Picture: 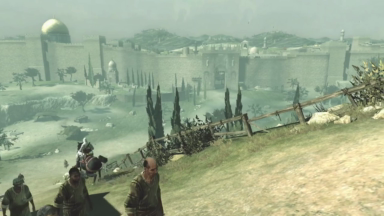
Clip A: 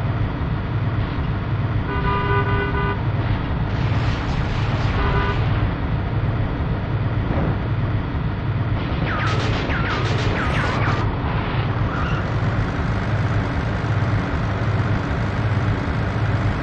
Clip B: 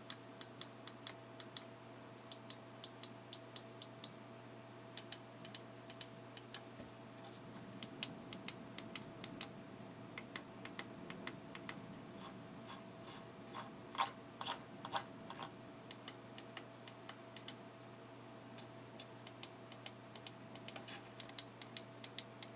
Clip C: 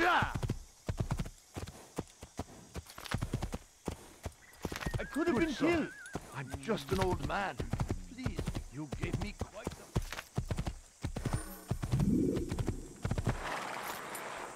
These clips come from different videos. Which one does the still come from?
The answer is C